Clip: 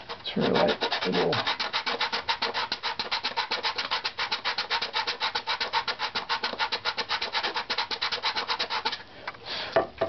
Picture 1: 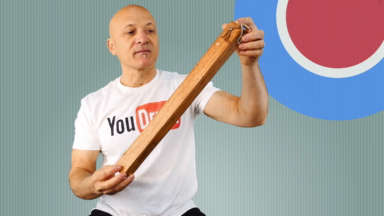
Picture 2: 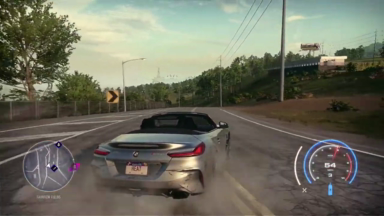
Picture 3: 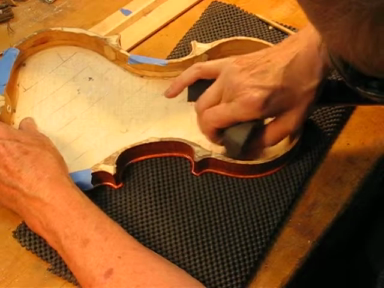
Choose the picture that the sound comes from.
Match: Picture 3